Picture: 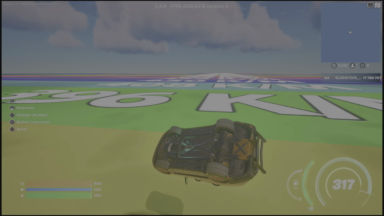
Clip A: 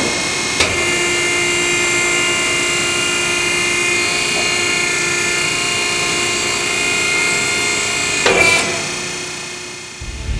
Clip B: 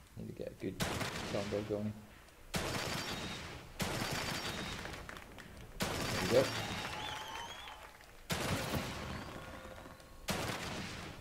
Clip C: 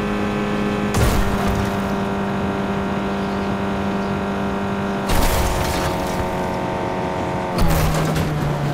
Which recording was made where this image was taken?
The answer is C